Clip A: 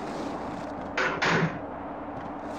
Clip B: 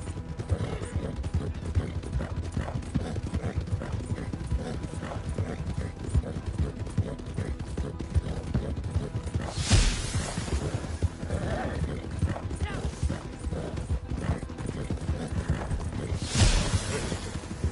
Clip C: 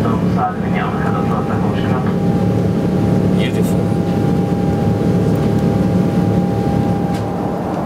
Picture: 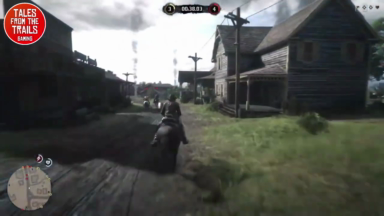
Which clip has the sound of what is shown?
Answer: B